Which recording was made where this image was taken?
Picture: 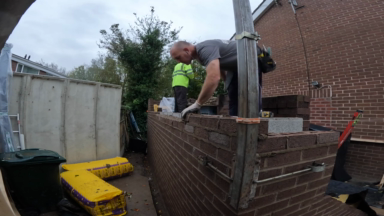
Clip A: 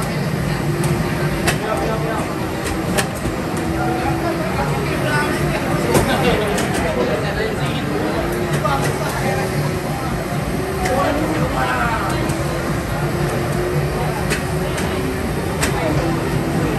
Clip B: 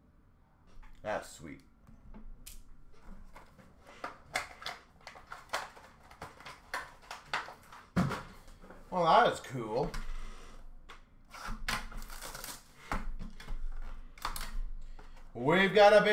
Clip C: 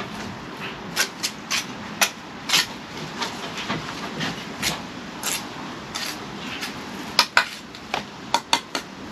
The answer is C